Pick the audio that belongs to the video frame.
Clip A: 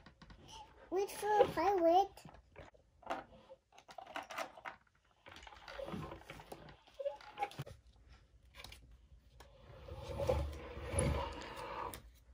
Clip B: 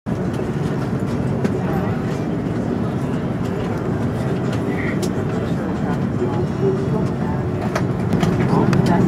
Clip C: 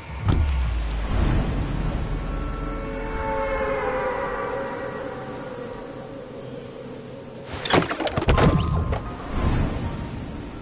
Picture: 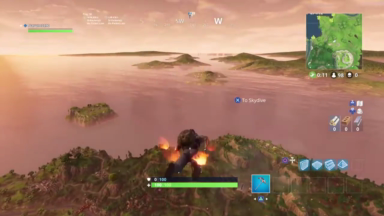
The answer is C